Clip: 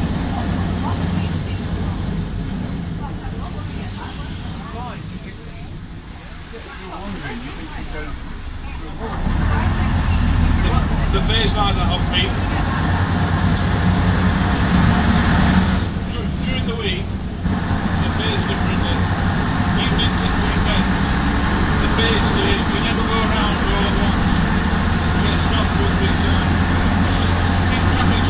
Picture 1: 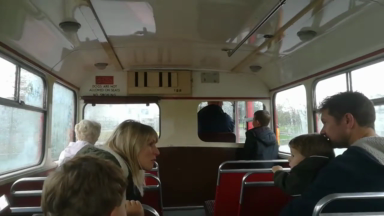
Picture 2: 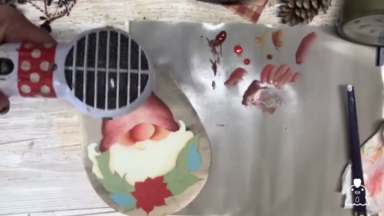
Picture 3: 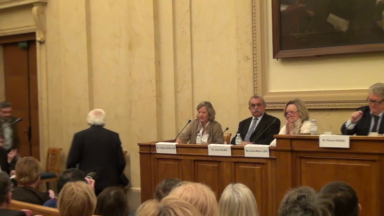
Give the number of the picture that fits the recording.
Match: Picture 1